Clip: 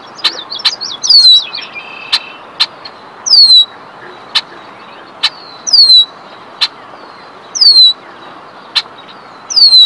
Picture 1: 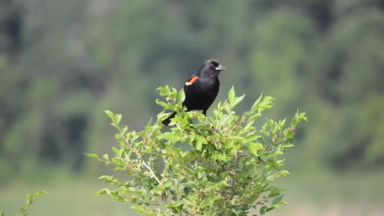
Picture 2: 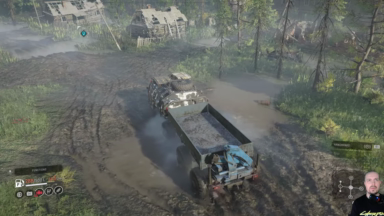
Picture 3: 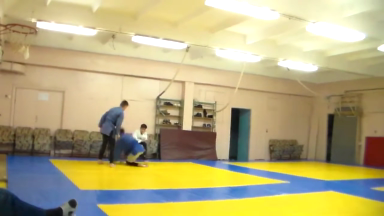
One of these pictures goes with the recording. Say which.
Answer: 1